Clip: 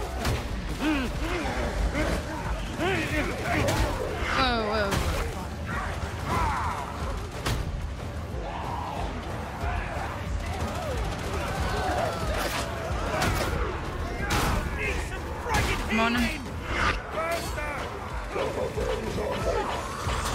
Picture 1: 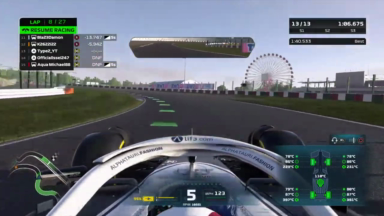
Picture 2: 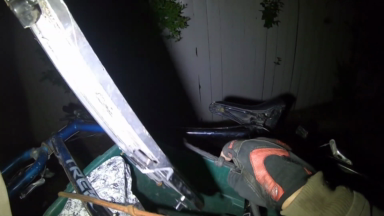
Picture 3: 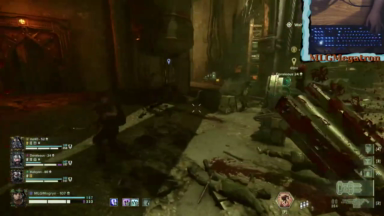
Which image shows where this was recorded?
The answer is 3